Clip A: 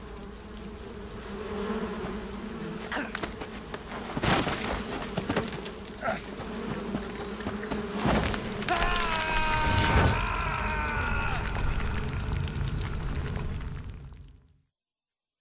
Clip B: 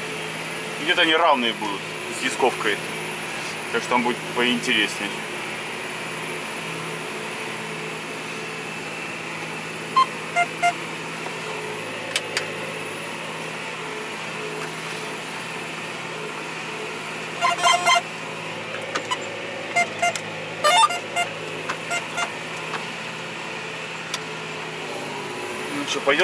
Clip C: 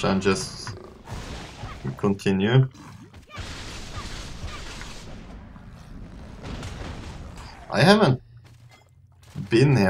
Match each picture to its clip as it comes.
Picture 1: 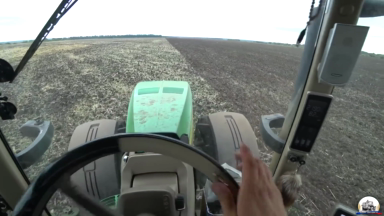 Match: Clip B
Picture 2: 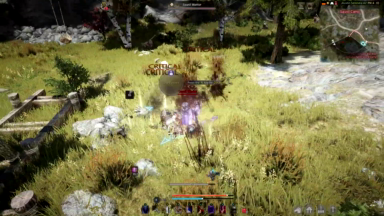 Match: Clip C